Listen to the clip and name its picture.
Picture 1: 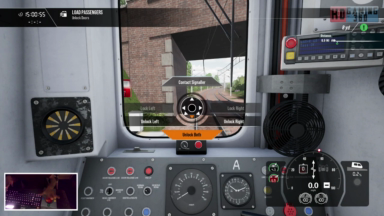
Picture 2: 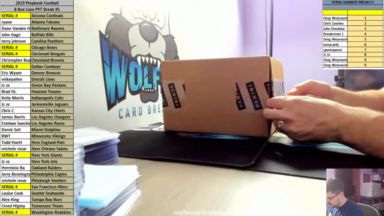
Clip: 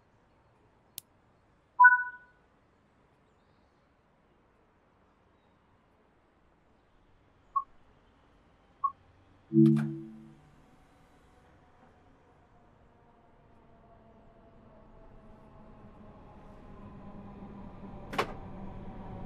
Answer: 1